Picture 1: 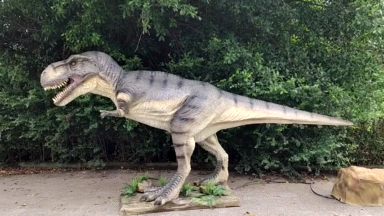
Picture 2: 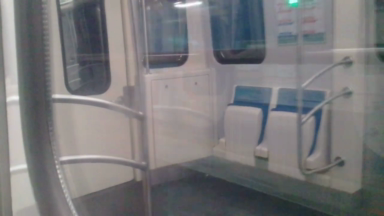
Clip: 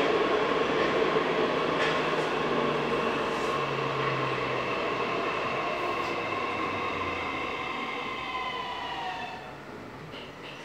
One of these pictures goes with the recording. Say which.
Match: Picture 2